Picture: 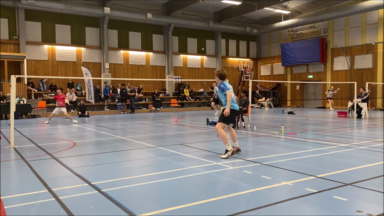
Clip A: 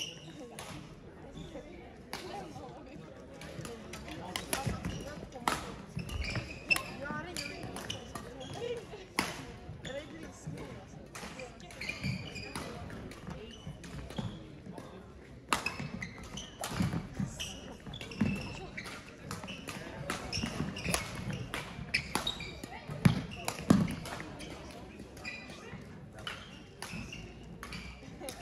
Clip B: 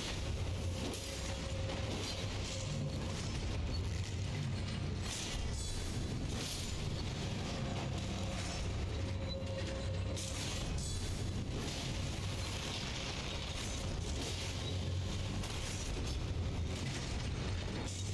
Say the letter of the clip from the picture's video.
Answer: A